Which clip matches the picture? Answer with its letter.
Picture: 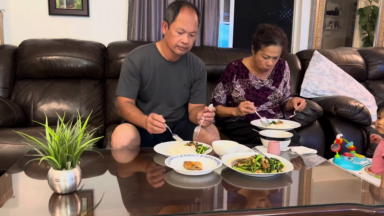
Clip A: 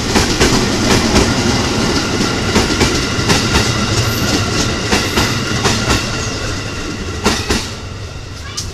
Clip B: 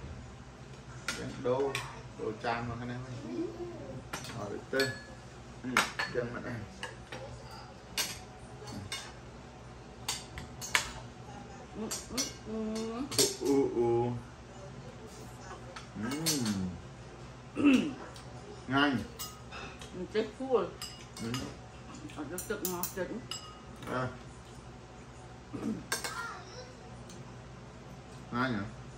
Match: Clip B